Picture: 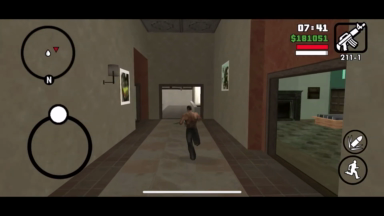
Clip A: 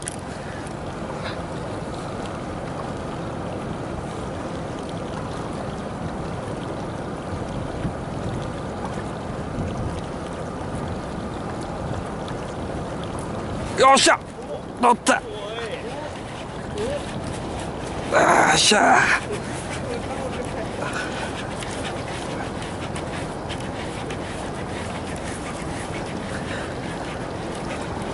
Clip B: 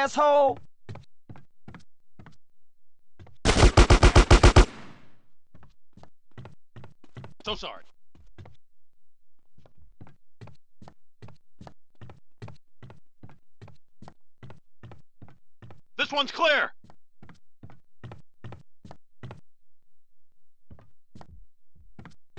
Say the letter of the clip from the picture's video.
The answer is B